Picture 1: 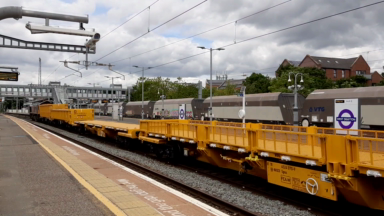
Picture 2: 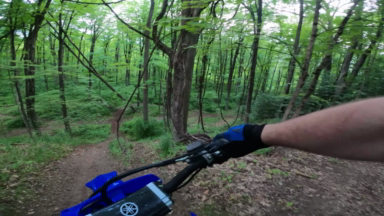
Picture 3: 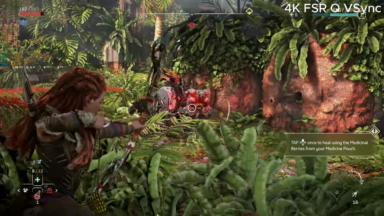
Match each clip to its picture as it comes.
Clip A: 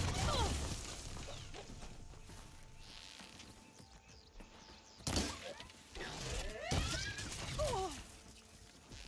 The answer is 3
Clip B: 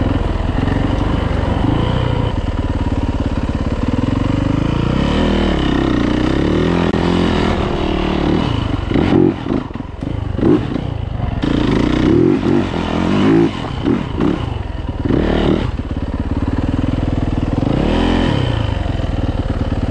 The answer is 2